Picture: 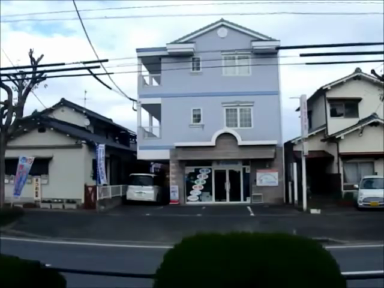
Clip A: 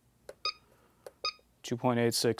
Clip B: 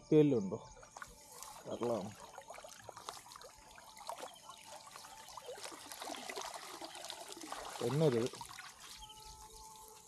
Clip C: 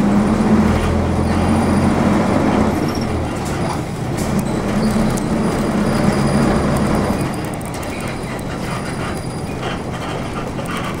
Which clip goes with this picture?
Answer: C